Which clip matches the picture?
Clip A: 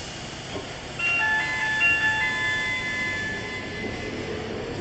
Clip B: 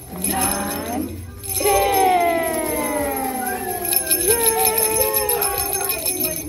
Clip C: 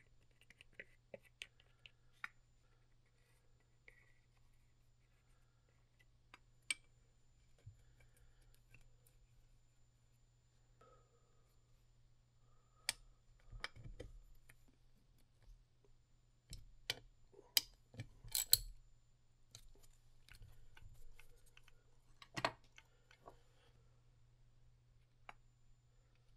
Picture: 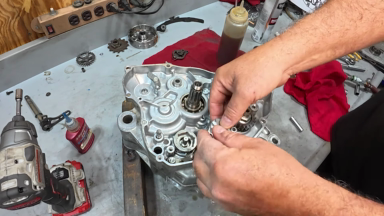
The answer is C